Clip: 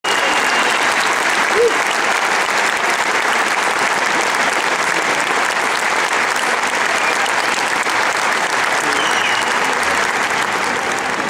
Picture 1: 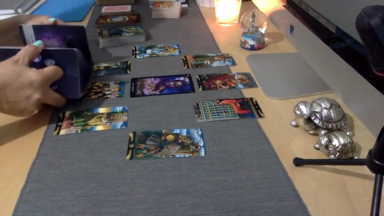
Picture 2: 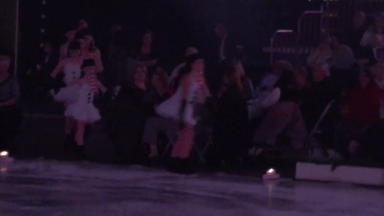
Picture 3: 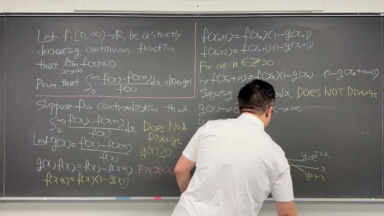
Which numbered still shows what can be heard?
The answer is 2